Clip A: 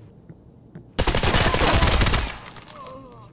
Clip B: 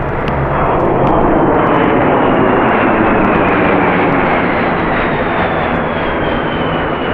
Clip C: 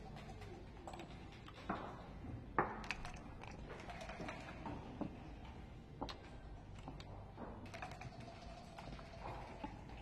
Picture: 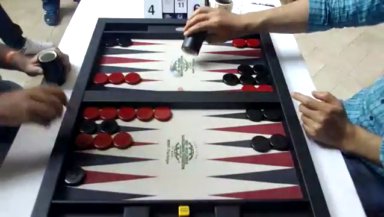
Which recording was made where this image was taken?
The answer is C